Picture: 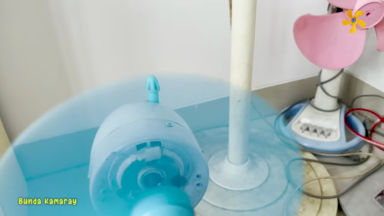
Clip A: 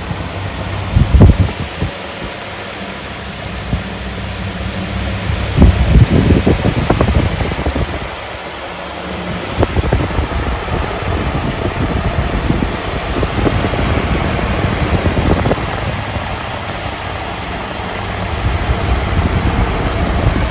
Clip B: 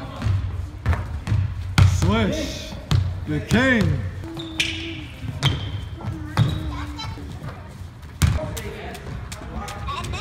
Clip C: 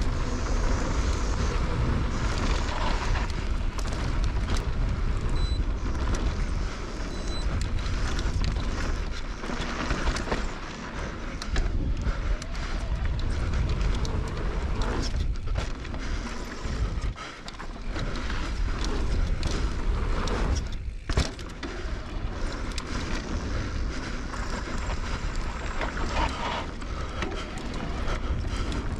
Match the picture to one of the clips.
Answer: A